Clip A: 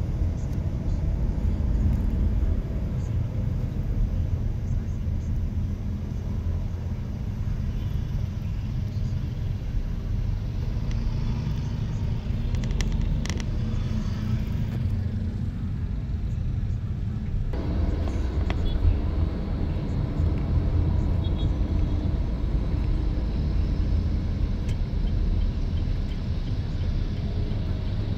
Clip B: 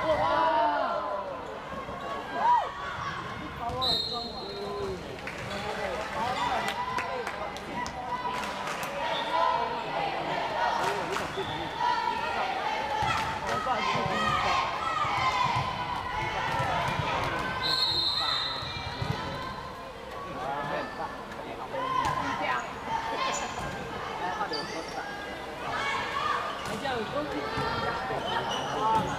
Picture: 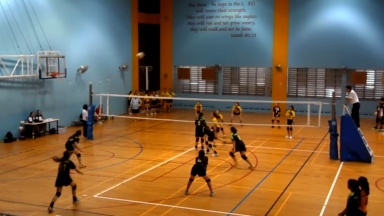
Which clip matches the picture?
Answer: B